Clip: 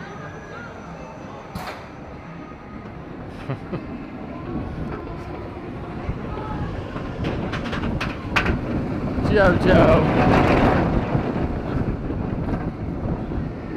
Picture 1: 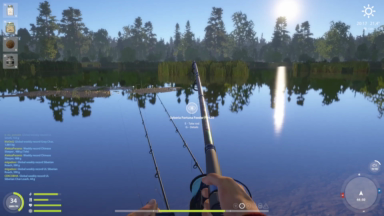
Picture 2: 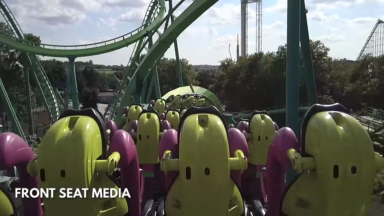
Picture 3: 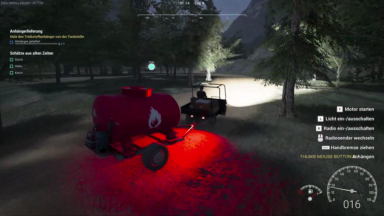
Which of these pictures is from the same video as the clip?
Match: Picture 2